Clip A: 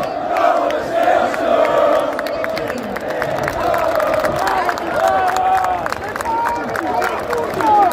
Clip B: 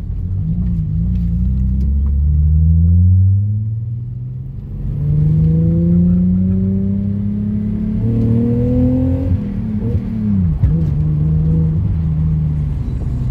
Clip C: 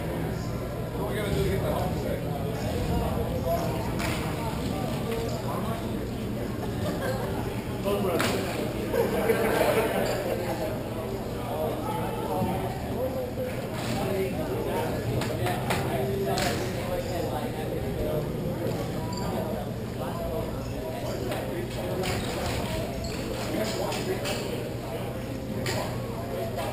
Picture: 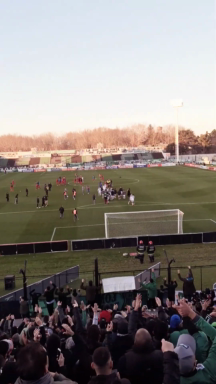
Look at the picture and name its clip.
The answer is A